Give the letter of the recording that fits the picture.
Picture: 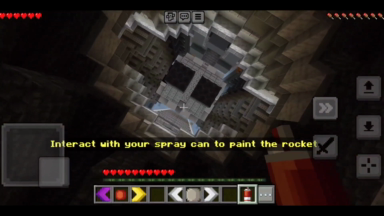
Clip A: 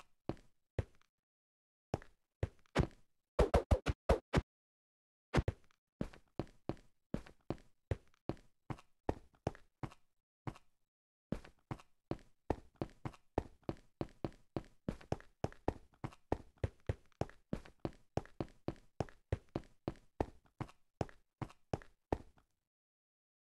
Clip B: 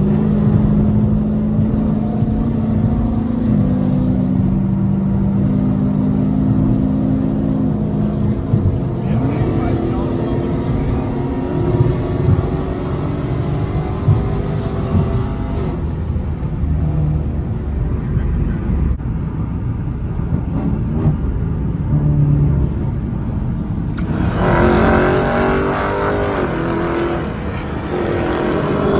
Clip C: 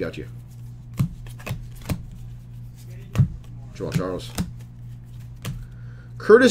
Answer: A